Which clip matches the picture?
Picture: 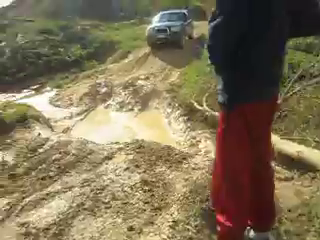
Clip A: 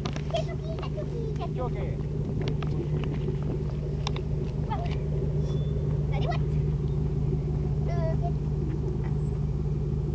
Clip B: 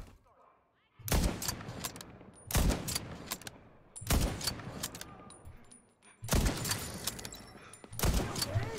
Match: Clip A